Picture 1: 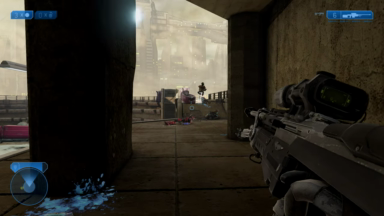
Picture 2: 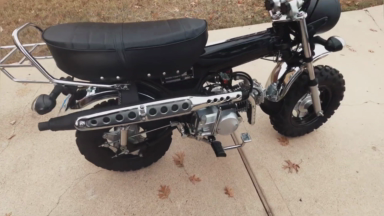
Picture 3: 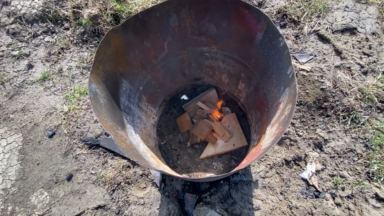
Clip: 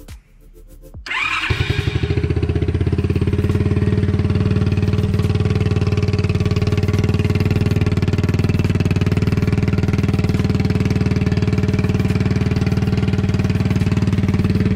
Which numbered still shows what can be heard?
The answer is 2